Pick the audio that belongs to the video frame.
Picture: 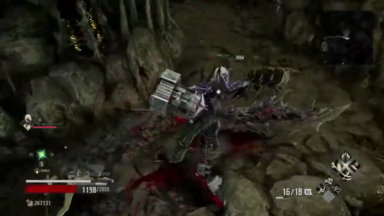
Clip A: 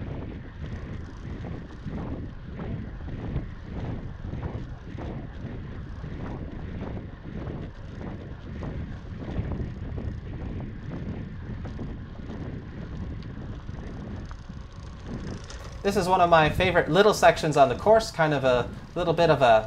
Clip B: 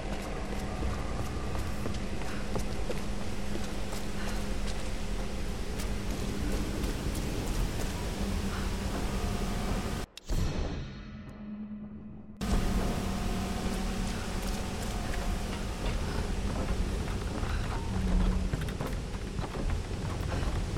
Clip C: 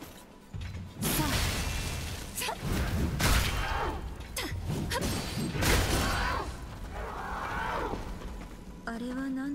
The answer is C